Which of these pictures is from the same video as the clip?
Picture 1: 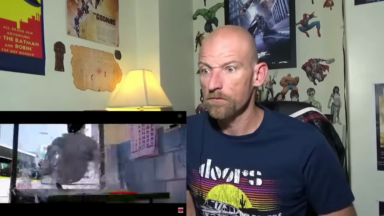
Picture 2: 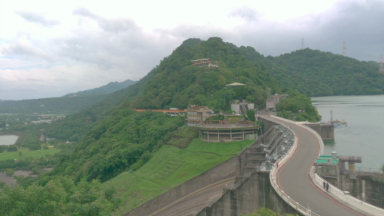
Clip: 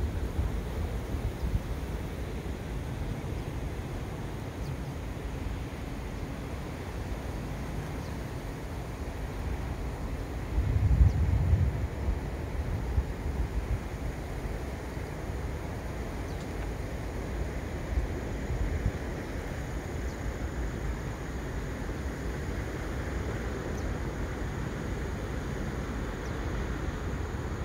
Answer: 2